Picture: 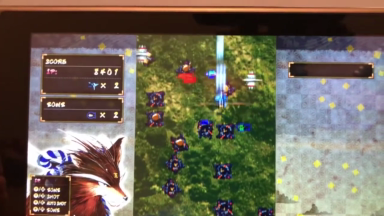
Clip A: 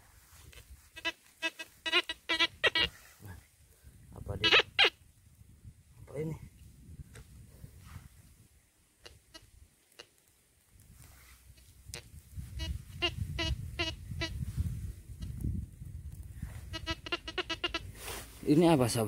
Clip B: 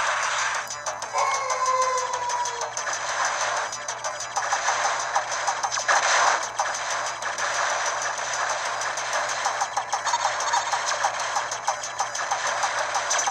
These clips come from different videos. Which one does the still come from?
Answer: B